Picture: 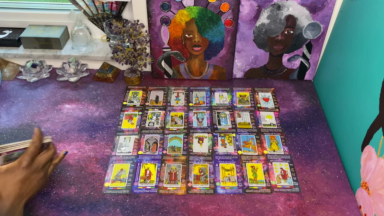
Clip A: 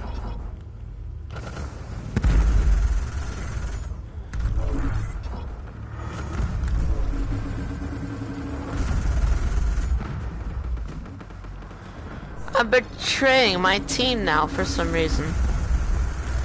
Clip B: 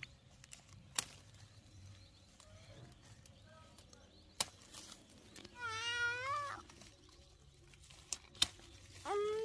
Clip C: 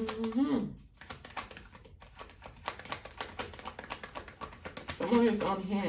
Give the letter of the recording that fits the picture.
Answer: C